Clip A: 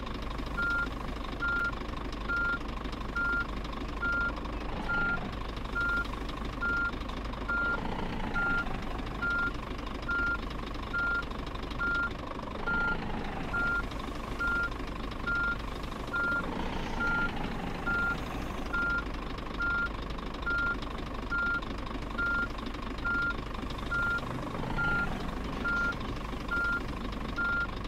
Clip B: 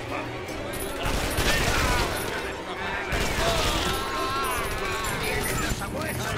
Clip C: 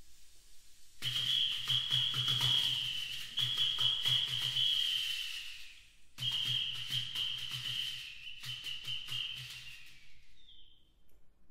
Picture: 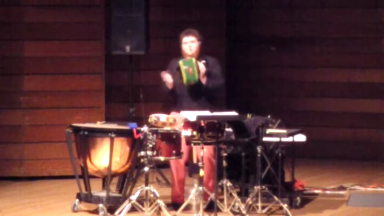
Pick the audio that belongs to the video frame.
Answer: C